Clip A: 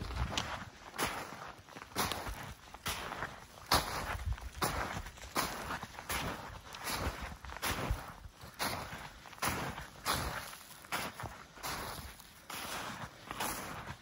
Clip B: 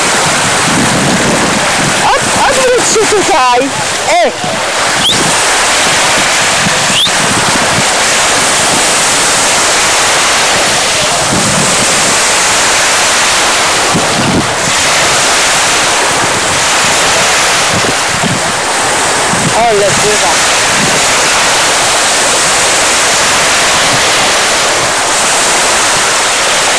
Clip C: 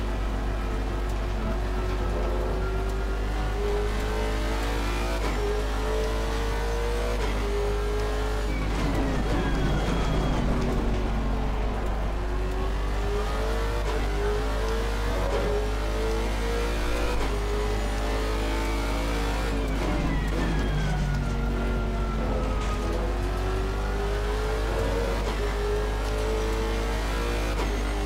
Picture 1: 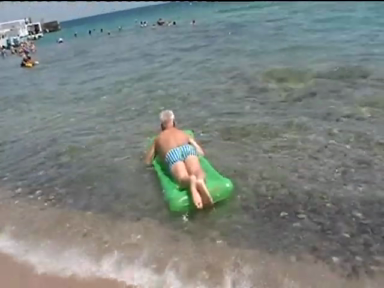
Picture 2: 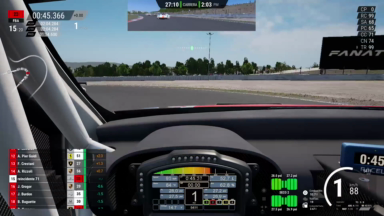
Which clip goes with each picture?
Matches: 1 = B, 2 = C